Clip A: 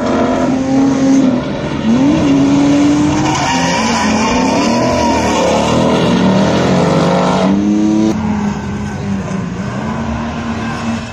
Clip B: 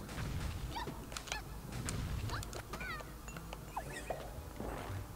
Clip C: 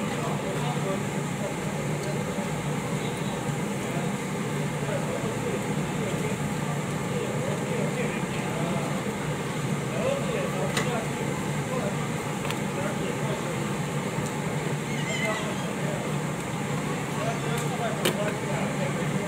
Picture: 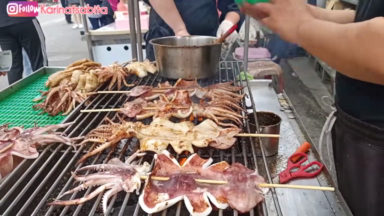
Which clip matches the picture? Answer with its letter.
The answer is C